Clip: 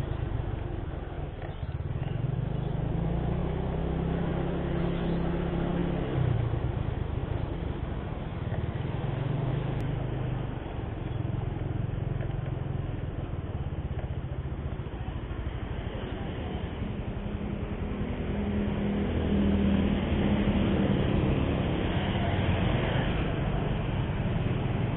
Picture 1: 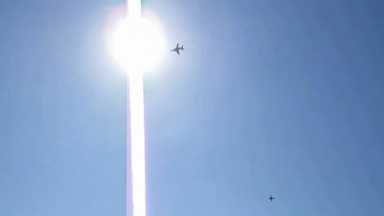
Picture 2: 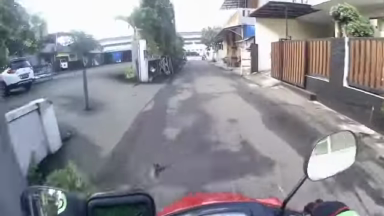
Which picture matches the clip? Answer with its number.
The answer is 2